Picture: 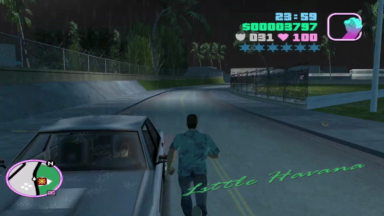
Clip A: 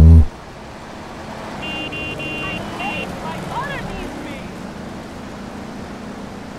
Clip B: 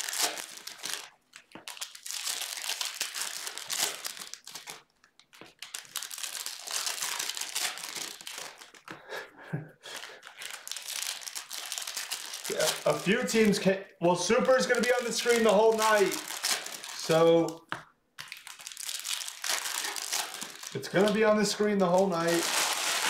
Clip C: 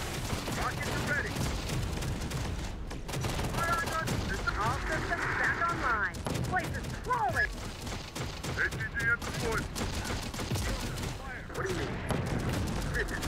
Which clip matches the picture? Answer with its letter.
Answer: A